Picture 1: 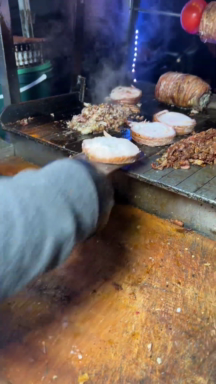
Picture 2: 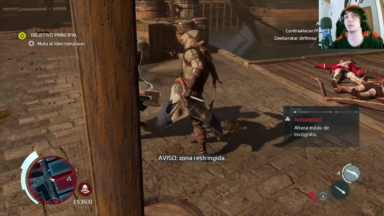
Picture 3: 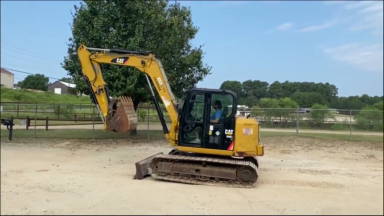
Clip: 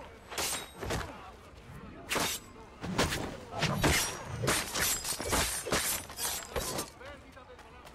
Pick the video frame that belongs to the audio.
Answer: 2